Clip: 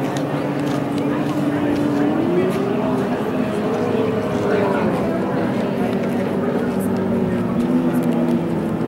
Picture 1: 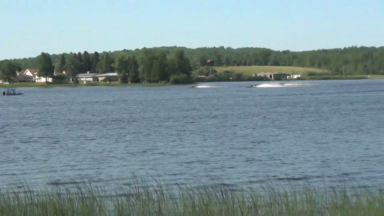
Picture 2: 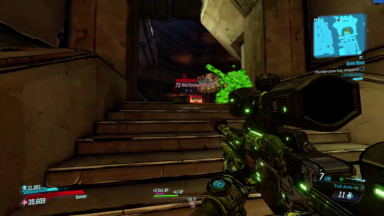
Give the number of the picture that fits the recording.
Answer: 1